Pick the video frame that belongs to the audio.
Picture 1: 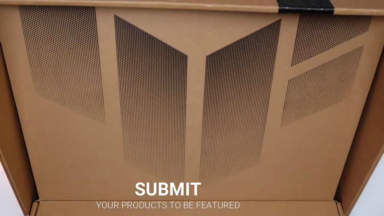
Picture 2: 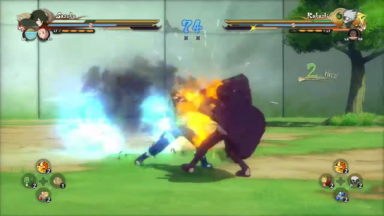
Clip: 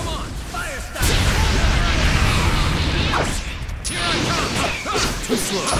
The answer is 2